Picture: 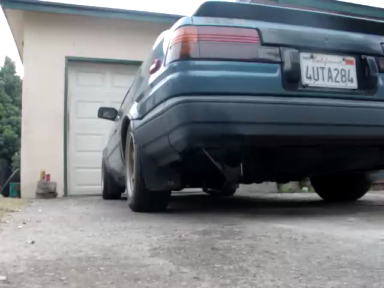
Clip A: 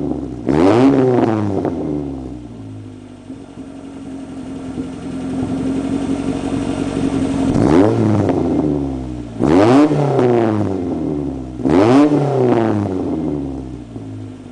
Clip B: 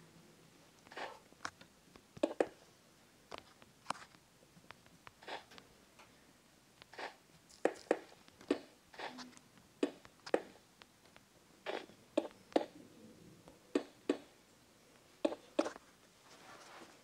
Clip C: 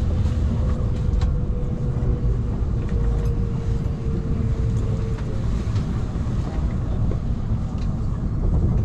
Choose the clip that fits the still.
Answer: A